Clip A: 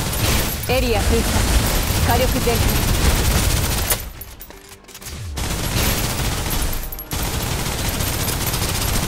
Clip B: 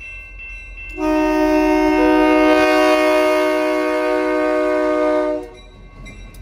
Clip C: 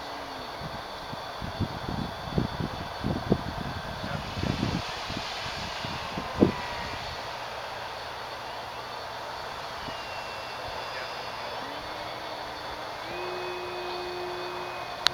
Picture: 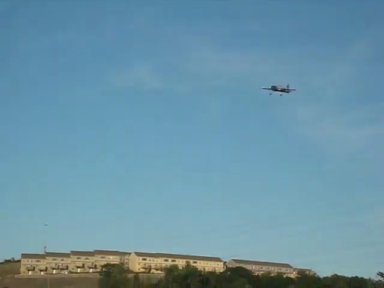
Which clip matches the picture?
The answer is C